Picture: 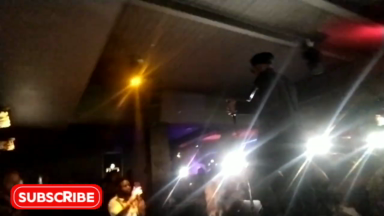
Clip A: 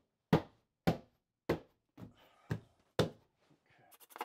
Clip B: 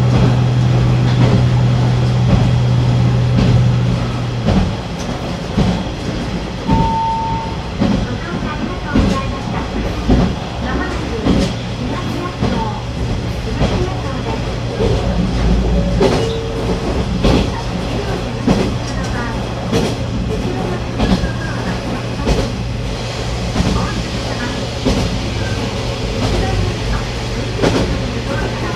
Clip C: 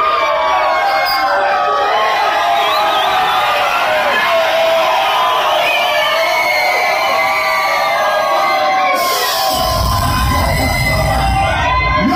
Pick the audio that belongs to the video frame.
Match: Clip C